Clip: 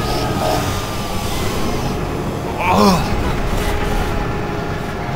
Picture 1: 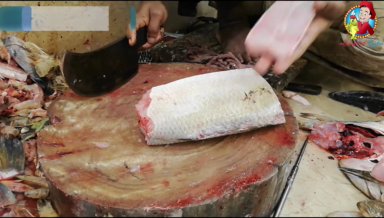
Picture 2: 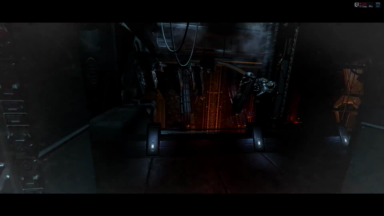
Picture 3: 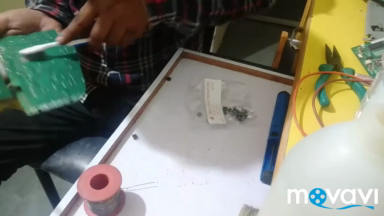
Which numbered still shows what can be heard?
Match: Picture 2